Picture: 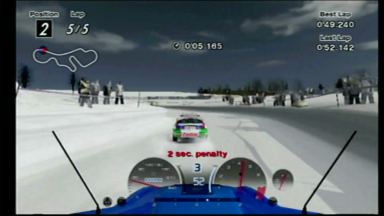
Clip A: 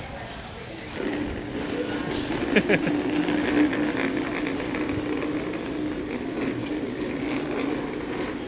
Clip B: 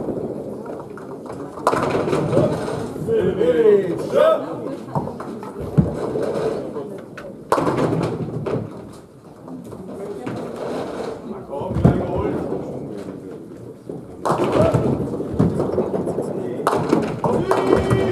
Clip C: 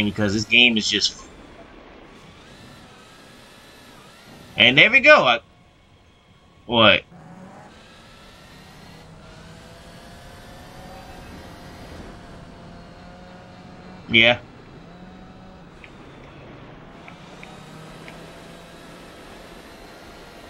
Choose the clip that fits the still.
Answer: C